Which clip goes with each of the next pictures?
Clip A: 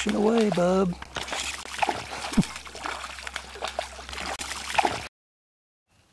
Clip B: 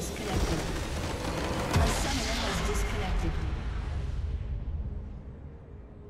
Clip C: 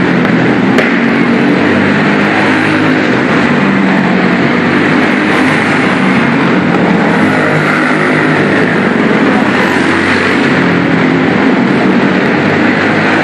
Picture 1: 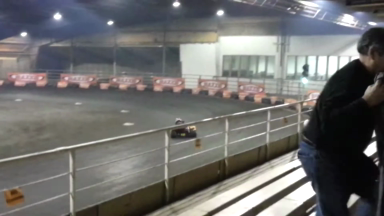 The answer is C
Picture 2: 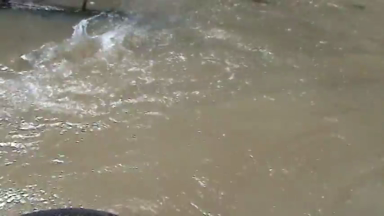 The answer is A